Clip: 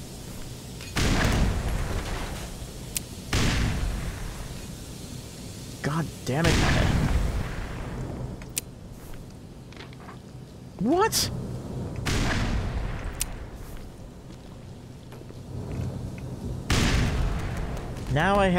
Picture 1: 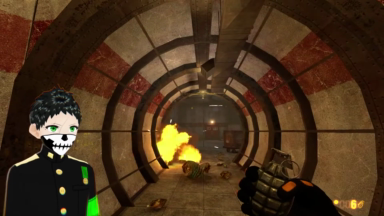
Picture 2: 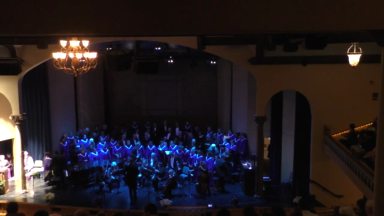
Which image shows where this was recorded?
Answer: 1